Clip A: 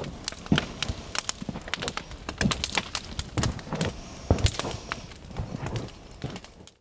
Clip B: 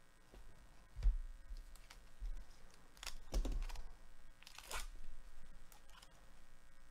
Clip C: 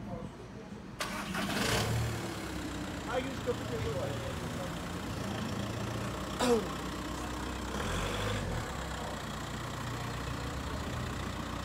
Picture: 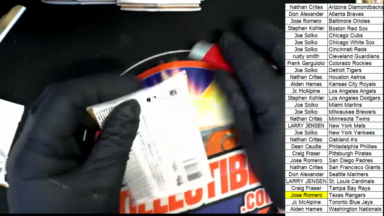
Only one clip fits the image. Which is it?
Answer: B